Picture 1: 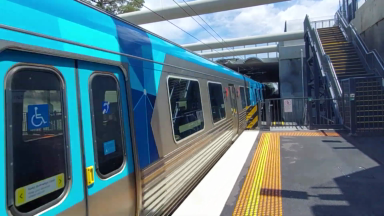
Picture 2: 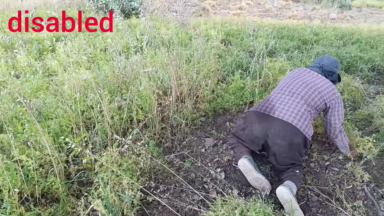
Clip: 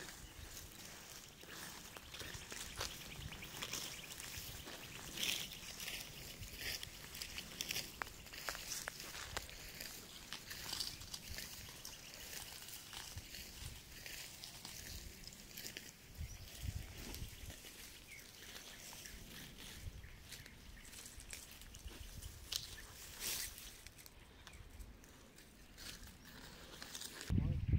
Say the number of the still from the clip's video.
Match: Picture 2